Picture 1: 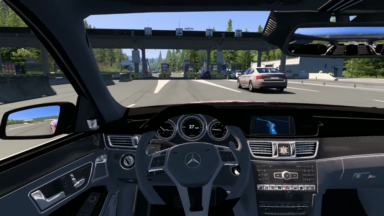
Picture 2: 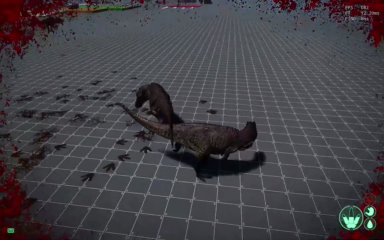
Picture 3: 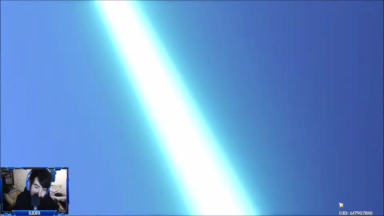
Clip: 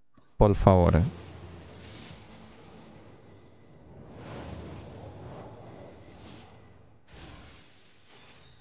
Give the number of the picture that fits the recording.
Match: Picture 3